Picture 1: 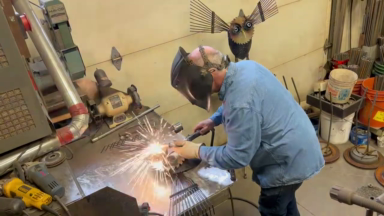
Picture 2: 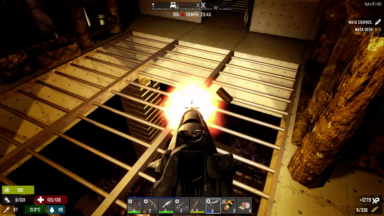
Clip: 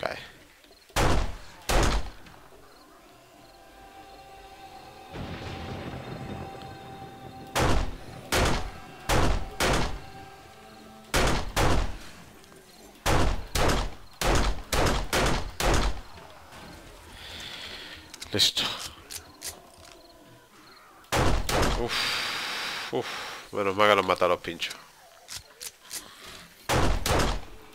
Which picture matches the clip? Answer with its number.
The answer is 2